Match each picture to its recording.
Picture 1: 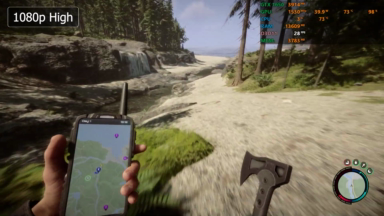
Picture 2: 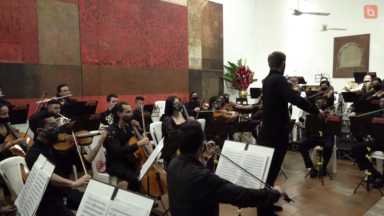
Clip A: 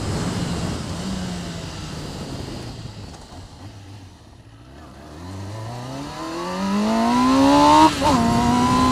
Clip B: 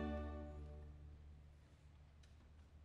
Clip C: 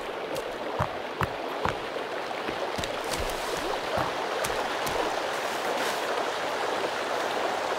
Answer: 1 C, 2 B